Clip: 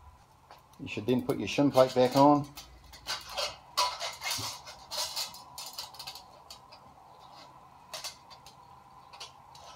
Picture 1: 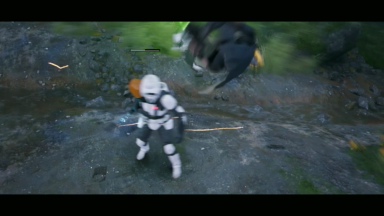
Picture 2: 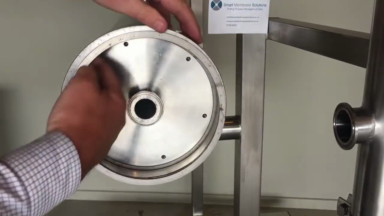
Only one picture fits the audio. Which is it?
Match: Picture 2